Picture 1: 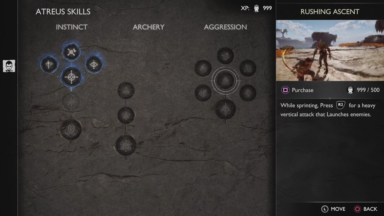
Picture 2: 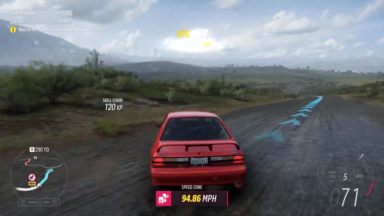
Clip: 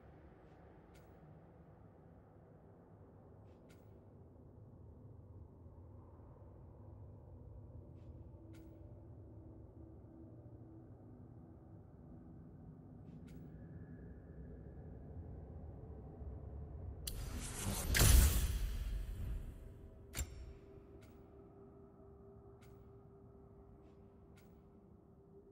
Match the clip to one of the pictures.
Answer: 1